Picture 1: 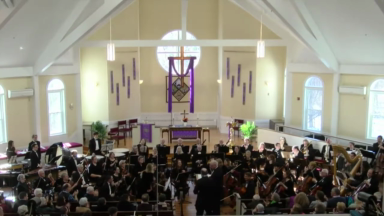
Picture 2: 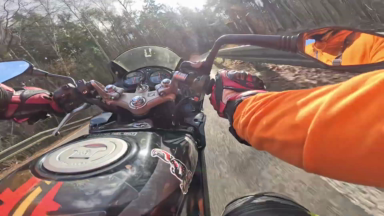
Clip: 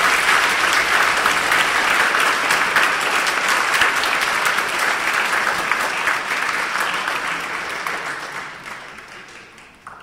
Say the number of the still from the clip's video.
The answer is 1